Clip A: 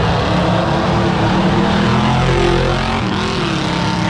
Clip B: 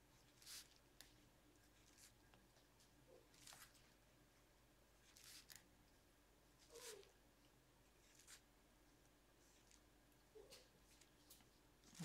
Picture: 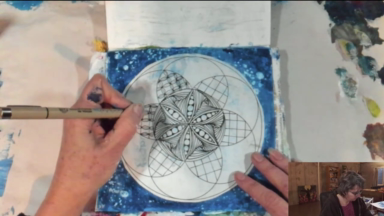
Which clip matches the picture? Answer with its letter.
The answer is B